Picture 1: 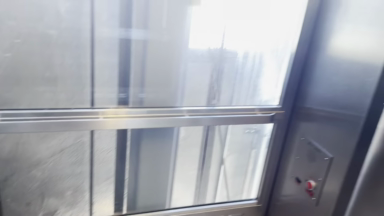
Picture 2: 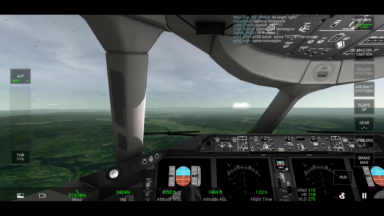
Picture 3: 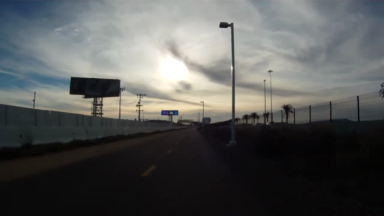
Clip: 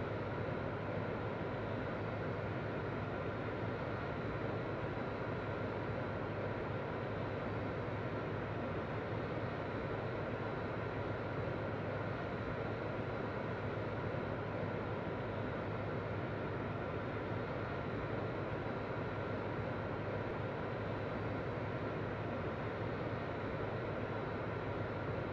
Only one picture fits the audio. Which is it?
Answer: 2